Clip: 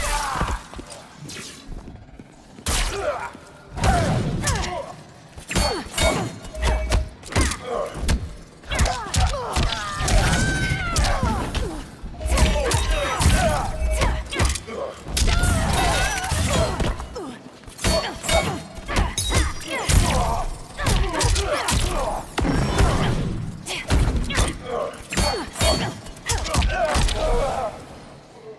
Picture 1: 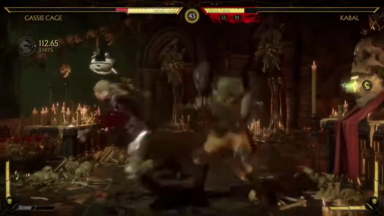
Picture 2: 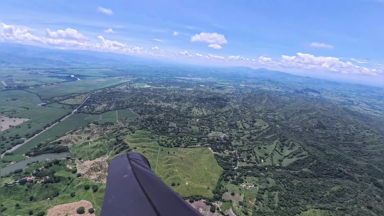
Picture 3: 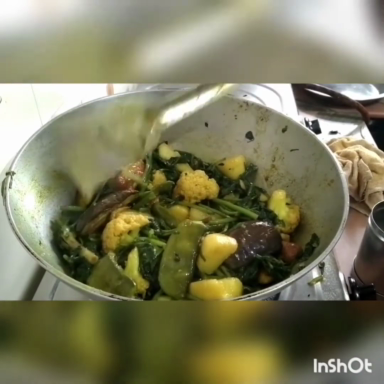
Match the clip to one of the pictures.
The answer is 1